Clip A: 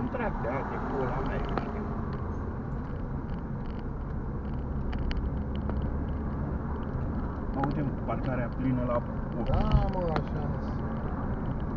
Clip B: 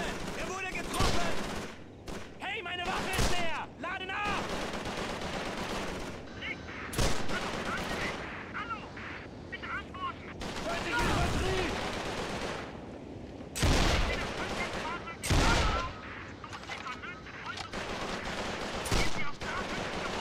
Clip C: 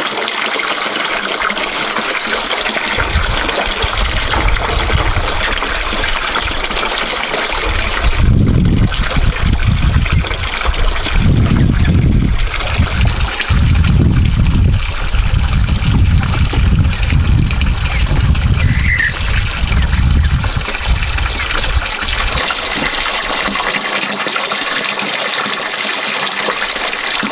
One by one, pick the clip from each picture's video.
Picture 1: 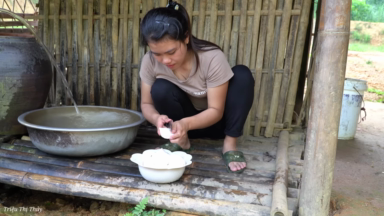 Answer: C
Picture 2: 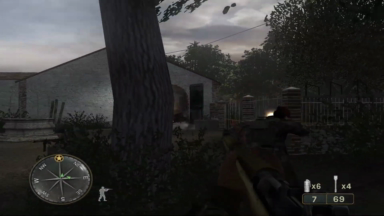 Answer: B